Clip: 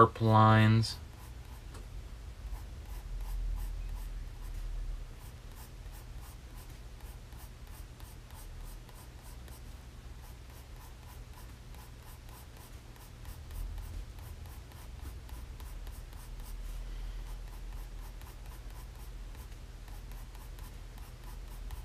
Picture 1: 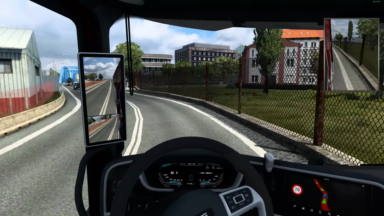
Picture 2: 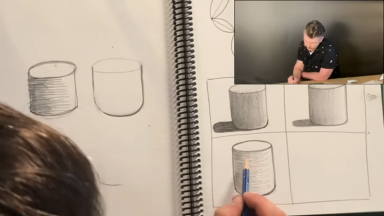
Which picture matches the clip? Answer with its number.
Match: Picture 2